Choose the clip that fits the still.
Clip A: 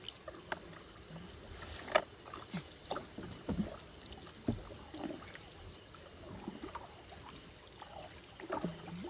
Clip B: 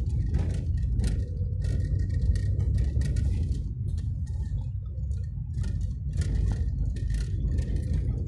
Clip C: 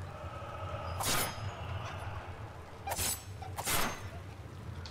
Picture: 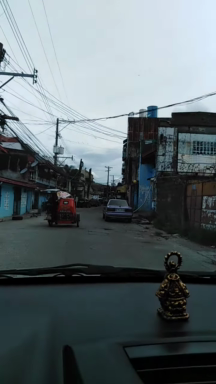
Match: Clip B